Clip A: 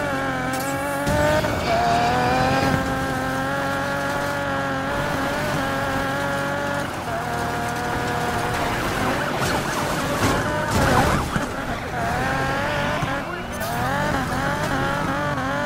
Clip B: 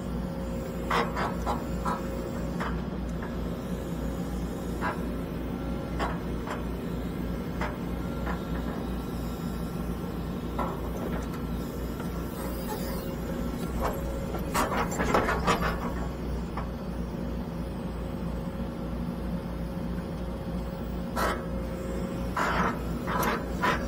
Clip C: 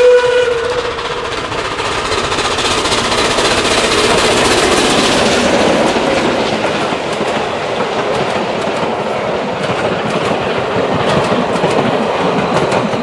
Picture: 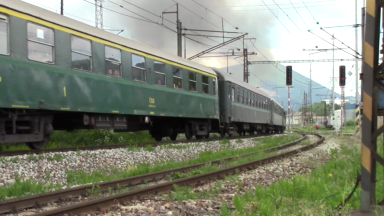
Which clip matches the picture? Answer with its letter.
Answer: C